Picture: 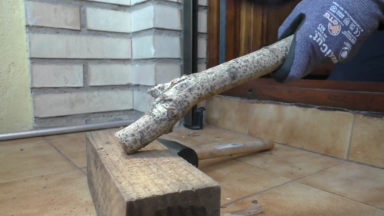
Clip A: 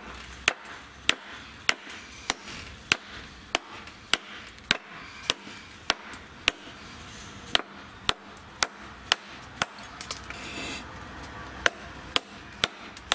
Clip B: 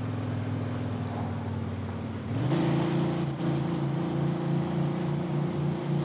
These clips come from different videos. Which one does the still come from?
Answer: A